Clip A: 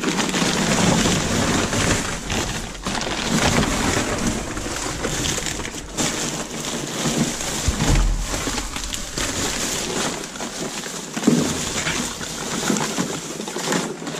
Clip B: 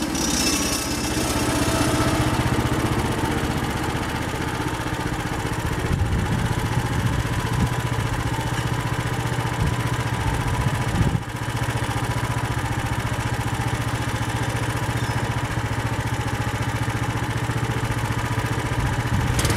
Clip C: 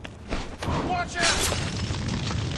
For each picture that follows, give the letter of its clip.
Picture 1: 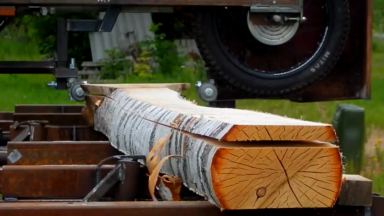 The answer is B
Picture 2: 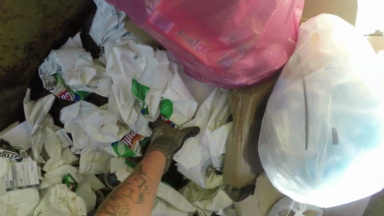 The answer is A